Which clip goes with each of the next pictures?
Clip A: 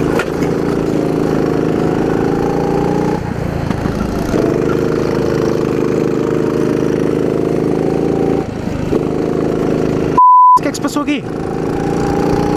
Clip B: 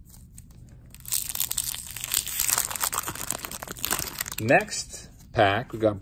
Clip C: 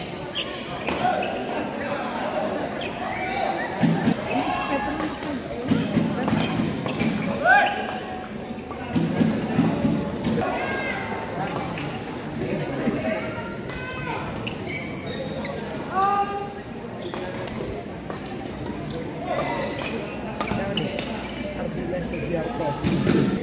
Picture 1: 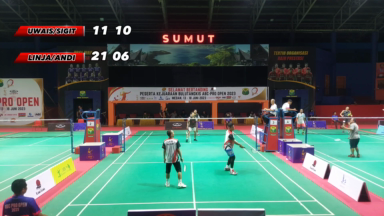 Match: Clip C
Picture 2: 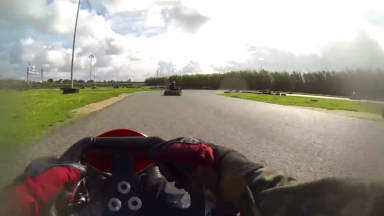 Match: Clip A